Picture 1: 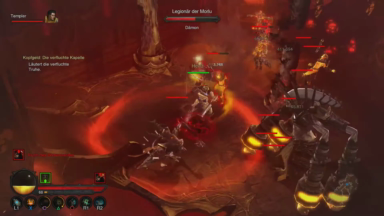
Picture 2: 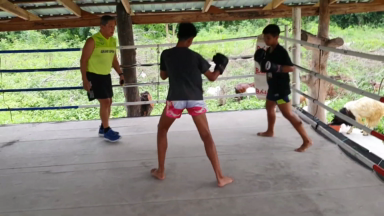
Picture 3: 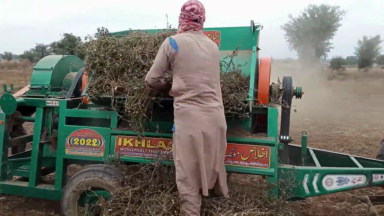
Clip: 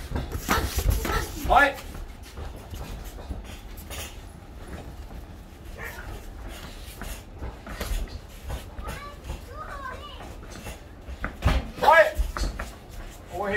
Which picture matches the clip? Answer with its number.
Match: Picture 2